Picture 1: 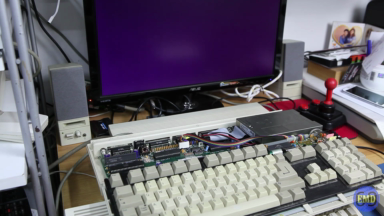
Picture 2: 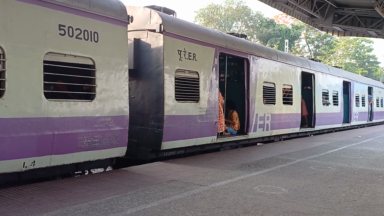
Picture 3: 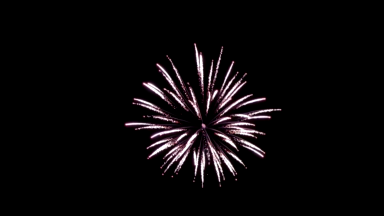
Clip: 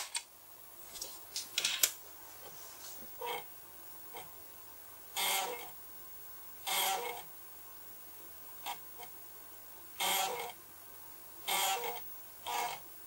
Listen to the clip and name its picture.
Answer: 1